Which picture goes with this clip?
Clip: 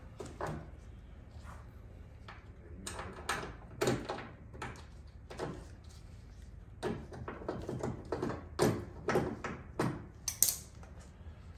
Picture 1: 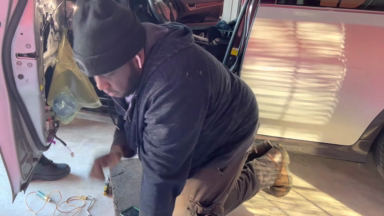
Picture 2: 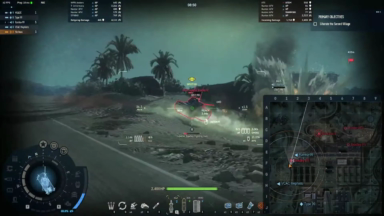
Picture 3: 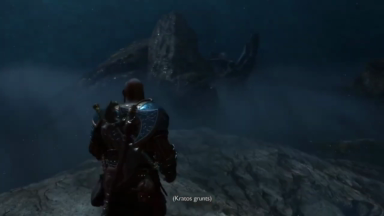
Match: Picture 1